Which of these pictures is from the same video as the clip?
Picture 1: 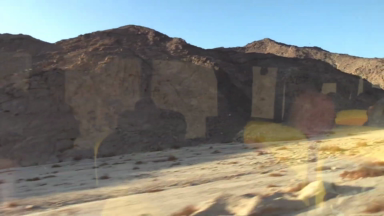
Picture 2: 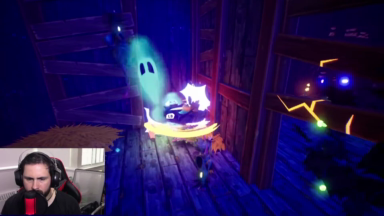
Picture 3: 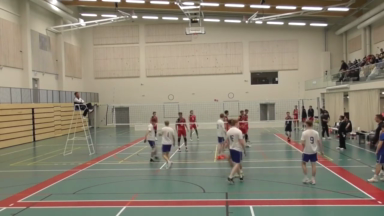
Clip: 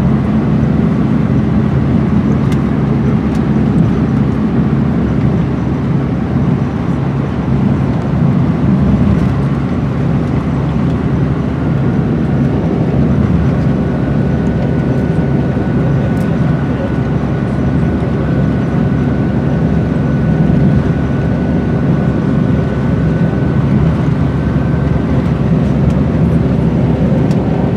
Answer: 1